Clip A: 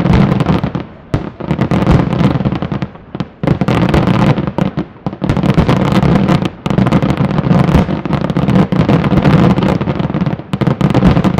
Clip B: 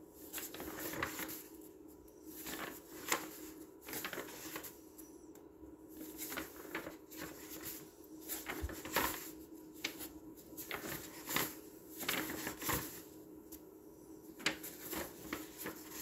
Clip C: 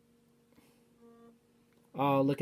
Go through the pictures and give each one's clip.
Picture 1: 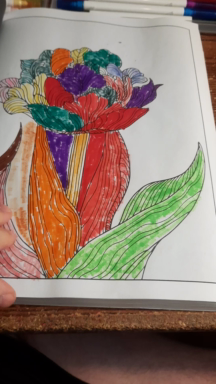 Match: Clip B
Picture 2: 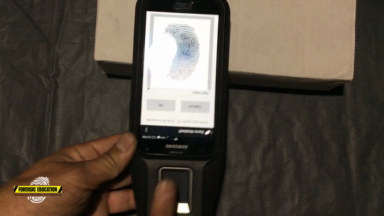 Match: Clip C